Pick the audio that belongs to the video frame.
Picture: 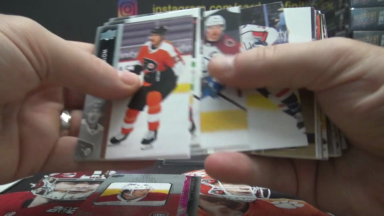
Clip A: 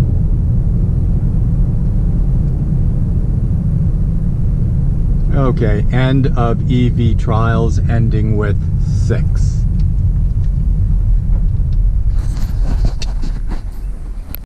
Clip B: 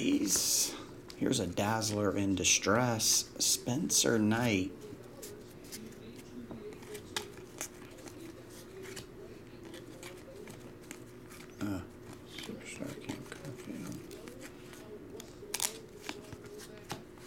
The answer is B